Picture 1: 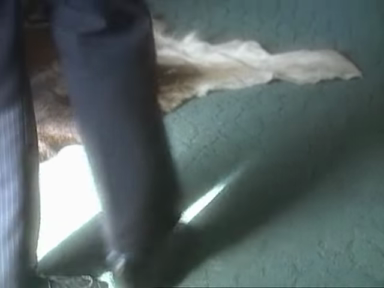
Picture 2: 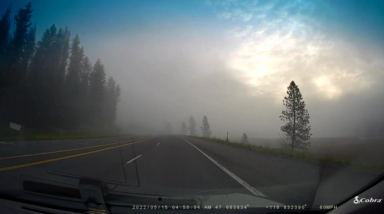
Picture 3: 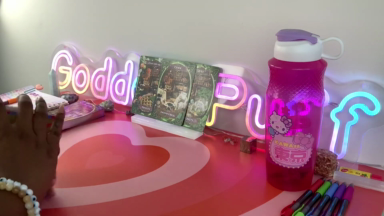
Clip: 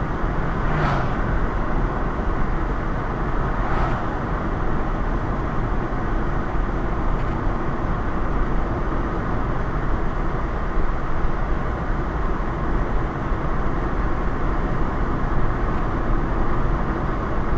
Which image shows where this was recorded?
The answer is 2